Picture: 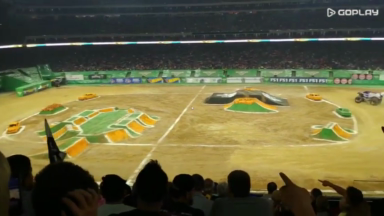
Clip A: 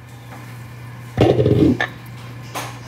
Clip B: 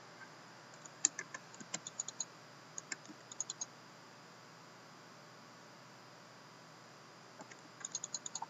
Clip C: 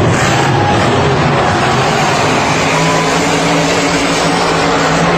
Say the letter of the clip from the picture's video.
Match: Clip C